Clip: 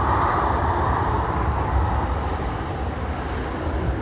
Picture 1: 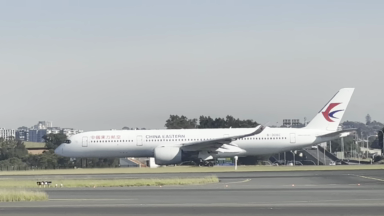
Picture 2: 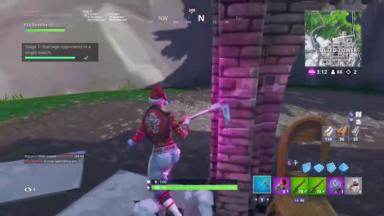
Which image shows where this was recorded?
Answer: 1